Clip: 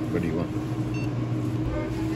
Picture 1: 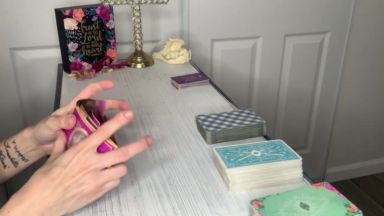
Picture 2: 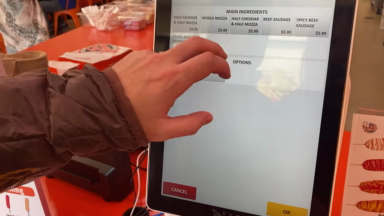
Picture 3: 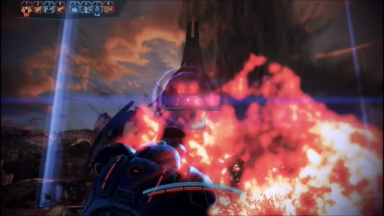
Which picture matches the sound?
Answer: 2